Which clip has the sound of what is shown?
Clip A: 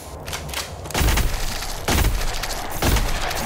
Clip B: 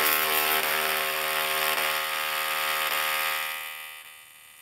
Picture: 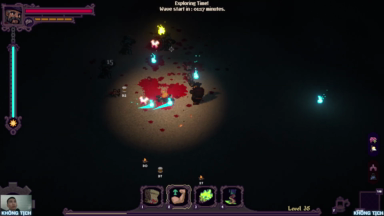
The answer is A